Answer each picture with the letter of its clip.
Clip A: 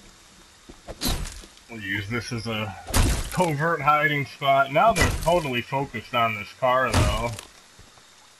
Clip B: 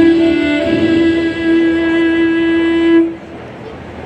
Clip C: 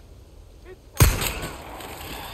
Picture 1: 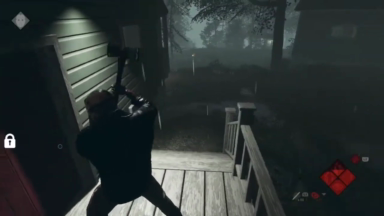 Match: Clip A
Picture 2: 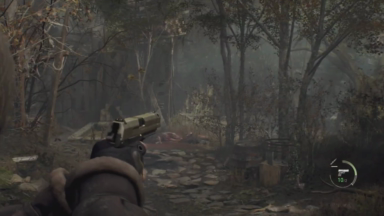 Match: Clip C